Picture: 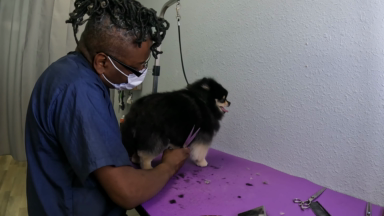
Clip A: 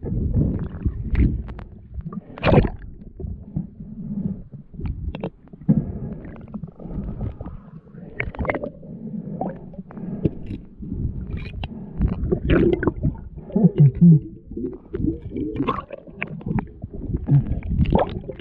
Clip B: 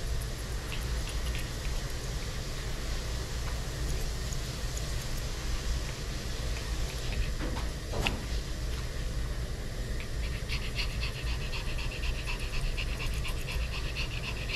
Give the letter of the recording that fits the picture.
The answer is B